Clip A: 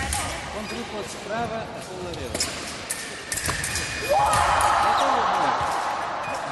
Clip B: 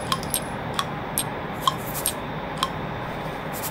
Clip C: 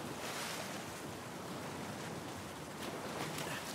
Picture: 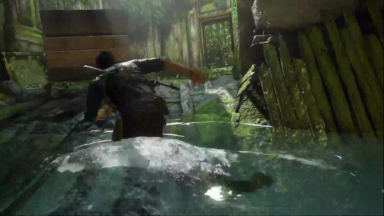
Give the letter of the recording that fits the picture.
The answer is C